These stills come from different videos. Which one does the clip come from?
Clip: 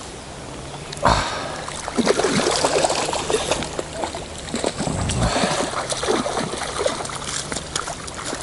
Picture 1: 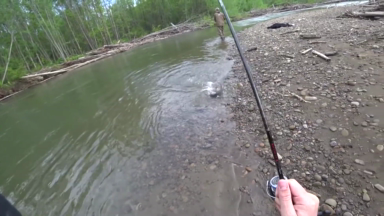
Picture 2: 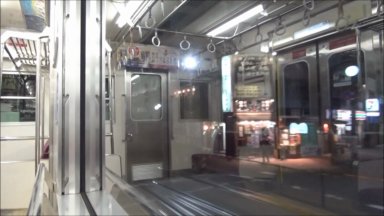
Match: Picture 1